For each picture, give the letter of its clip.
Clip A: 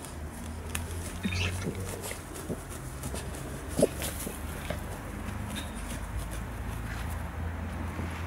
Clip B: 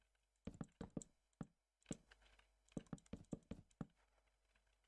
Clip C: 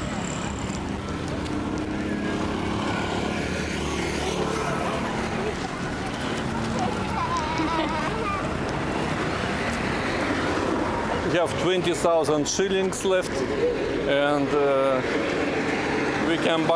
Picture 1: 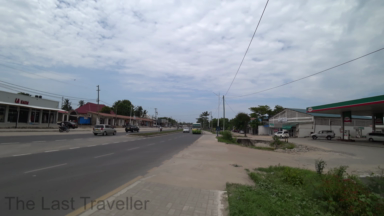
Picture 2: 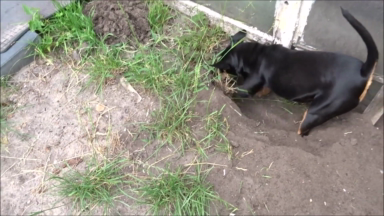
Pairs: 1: C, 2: A